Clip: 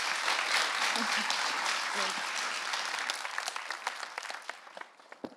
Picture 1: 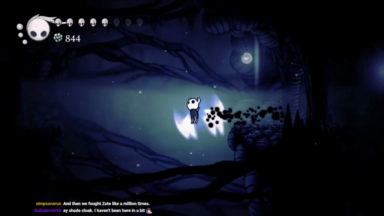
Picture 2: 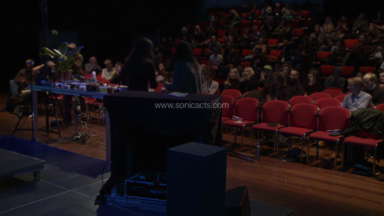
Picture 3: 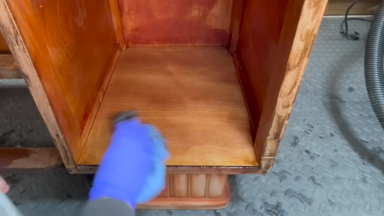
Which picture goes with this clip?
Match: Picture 2